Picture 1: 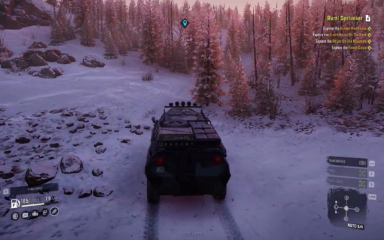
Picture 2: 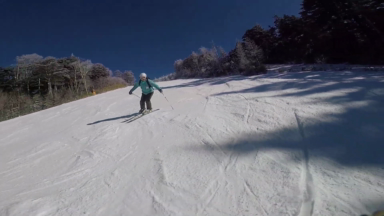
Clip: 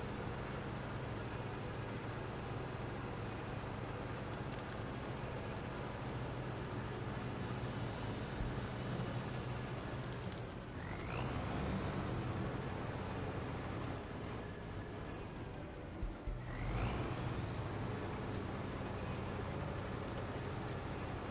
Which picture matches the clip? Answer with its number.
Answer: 1